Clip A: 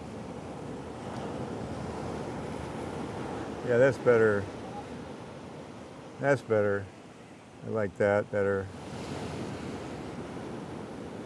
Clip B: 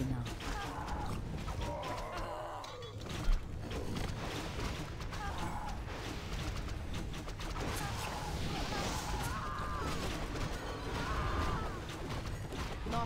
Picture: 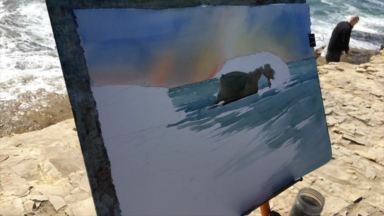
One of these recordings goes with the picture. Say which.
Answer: A